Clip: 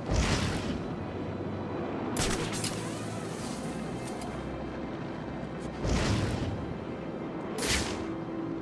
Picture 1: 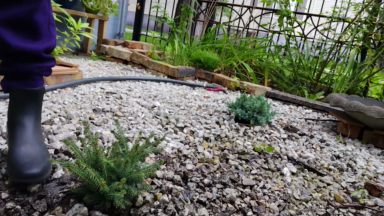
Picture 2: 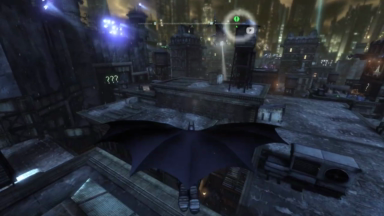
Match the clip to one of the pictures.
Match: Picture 2